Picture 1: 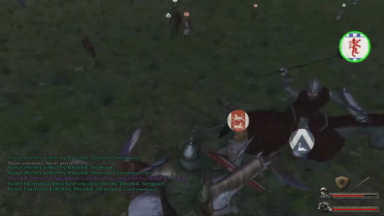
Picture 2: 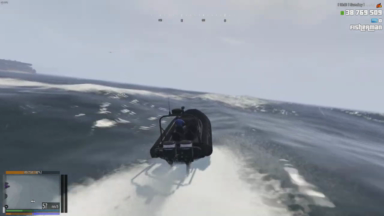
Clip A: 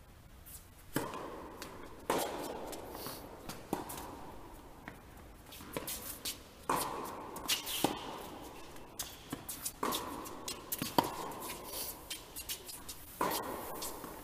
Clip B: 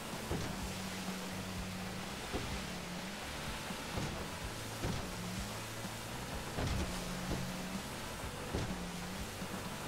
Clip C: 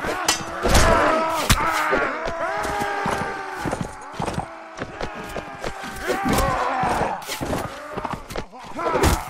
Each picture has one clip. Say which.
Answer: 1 C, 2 B